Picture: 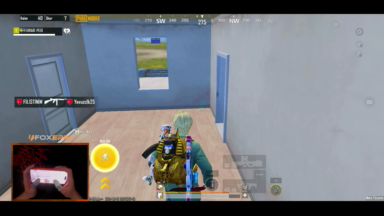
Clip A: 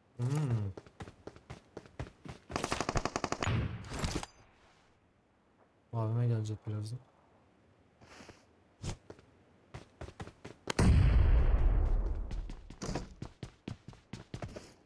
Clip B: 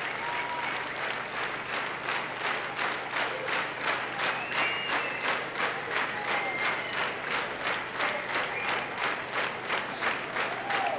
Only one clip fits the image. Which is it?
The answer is A